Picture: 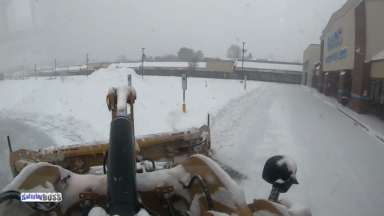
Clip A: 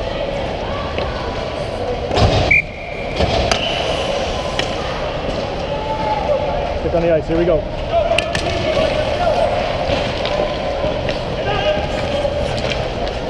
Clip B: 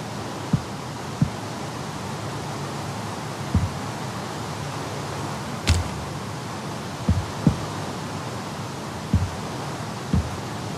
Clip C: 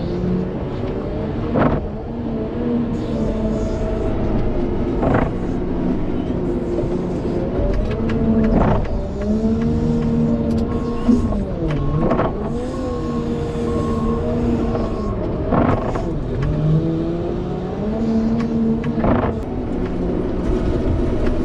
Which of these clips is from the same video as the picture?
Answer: C